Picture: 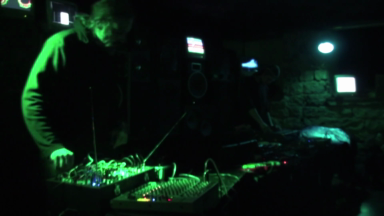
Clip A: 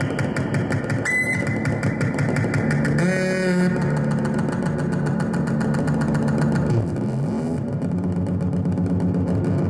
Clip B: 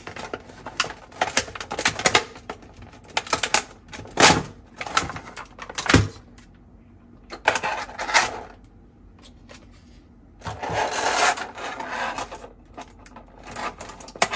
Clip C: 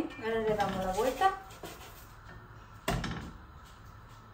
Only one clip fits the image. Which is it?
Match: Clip A